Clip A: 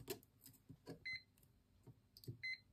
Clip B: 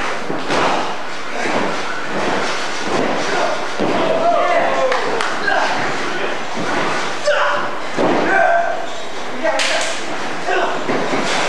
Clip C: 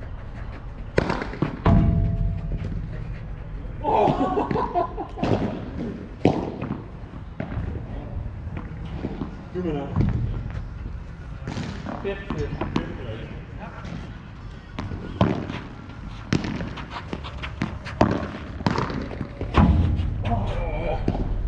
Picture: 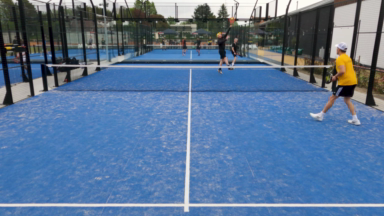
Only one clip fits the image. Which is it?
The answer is C